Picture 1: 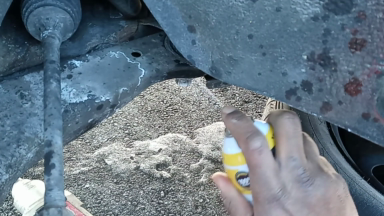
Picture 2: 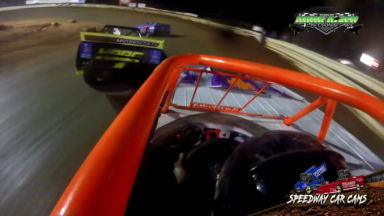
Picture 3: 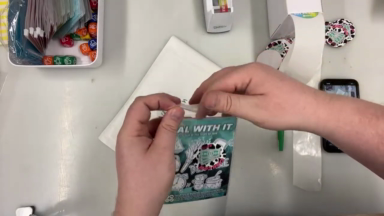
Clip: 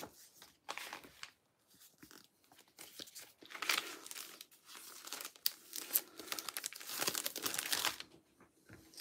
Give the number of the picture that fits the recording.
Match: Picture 3